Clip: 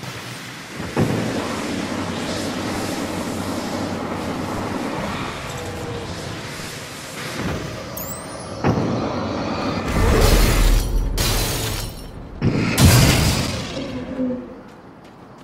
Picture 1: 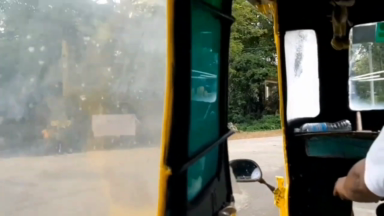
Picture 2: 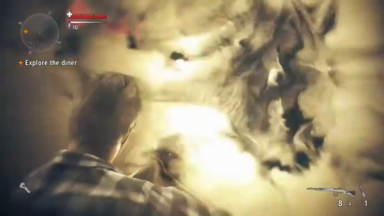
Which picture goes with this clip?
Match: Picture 2